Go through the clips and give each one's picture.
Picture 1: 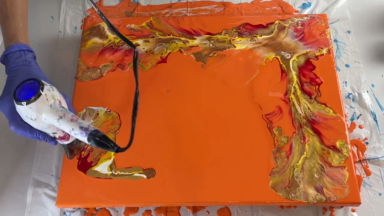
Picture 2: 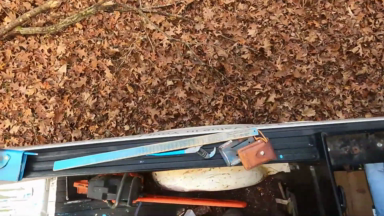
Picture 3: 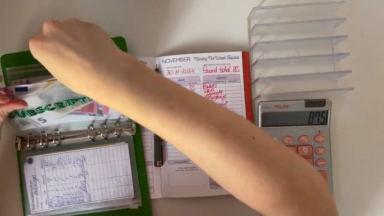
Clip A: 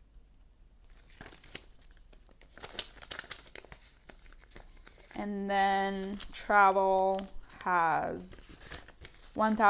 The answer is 3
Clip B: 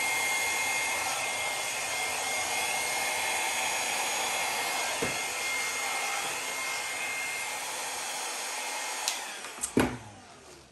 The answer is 1